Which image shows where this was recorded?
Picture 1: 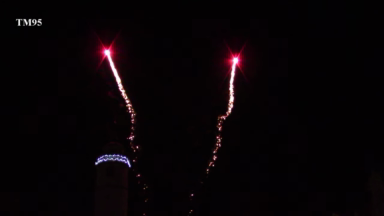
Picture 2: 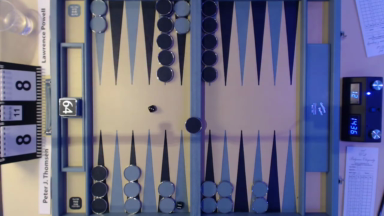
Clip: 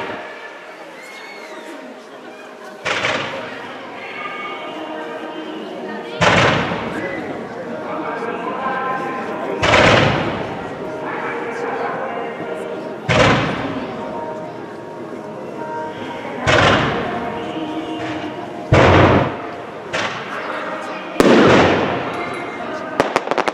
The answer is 1